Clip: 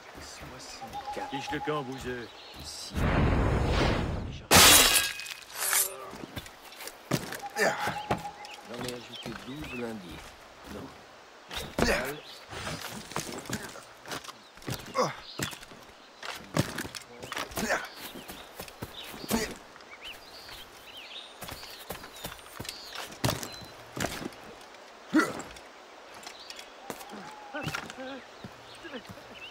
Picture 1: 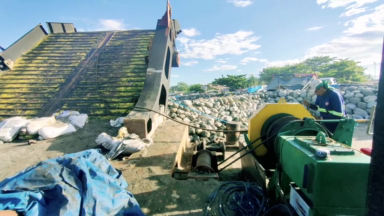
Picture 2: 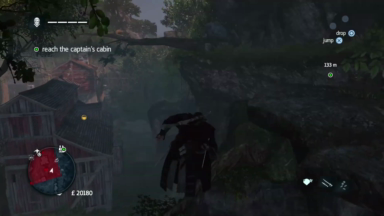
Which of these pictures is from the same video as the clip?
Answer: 2